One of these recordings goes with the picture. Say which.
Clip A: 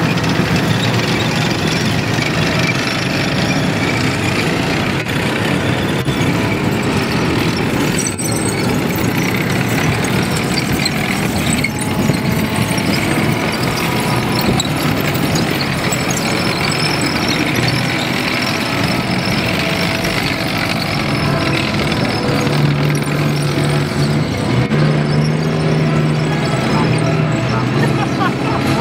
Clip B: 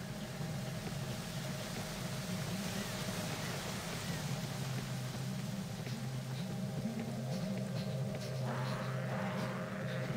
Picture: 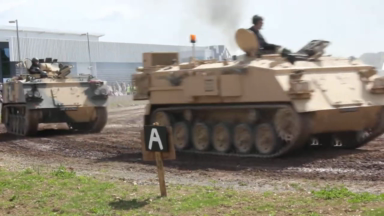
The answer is A